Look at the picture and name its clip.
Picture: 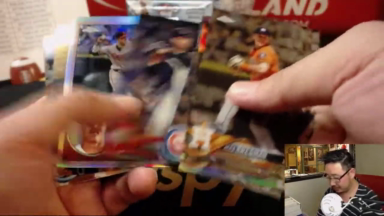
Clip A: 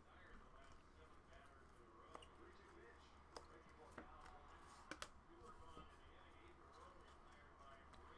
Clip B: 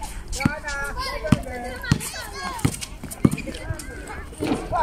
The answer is A